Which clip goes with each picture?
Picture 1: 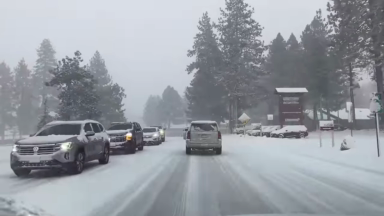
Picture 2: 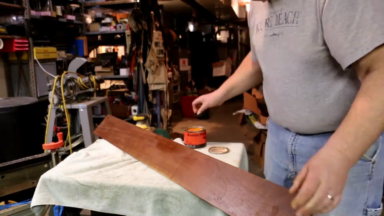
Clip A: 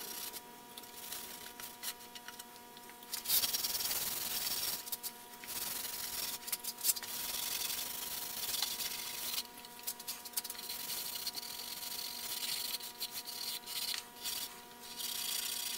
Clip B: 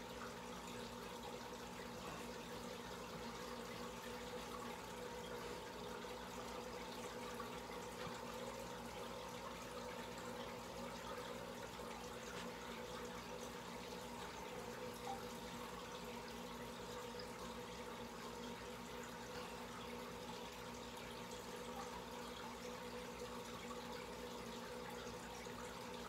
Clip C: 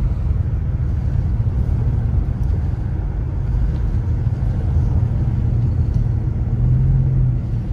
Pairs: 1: C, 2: A